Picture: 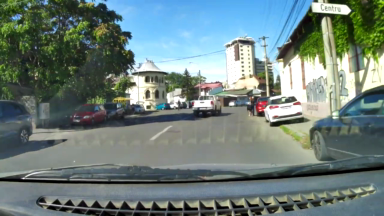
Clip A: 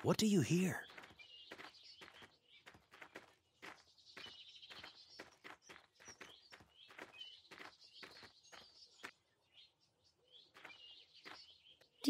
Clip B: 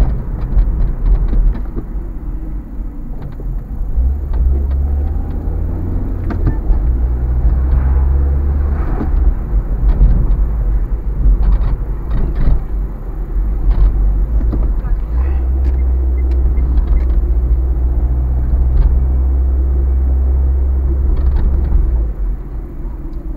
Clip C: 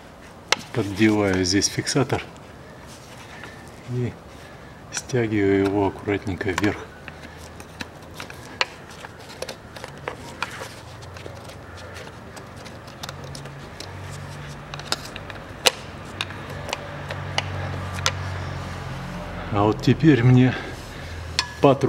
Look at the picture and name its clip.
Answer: B